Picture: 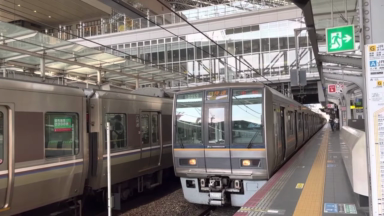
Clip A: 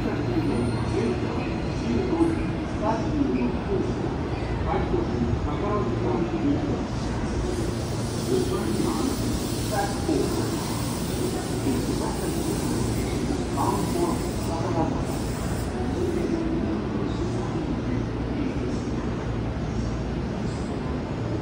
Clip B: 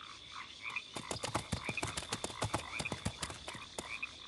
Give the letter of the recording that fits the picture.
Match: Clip A